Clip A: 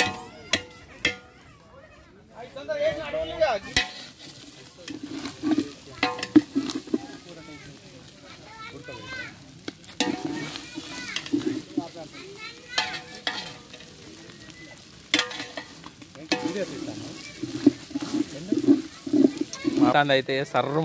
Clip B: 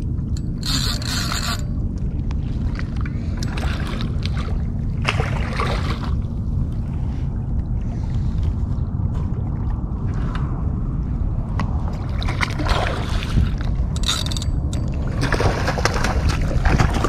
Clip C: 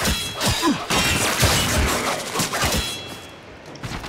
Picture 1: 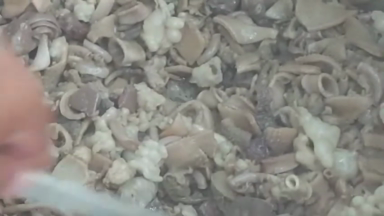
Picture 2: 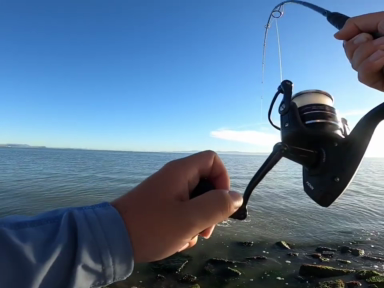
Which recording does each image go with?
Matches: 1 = A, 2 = B